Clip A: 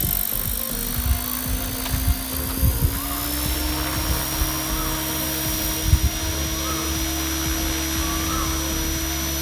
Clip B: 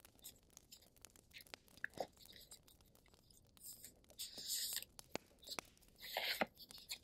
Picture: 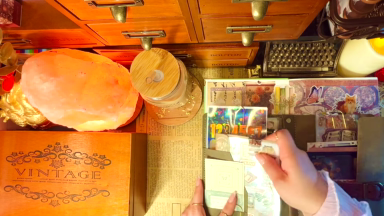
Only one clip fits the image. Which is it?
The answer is B